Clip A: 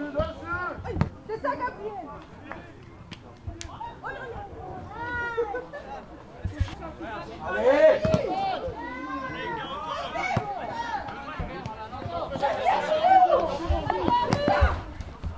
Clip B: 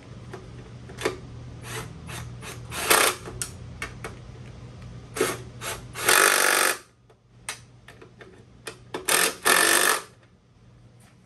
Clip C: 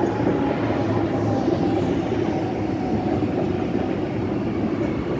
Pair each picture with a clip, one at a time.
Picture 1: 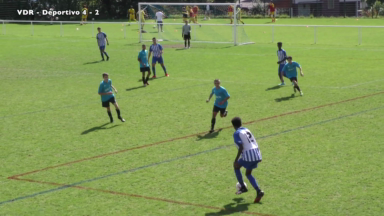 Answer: A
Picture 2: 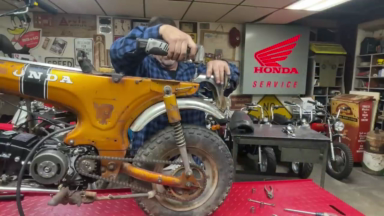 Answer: B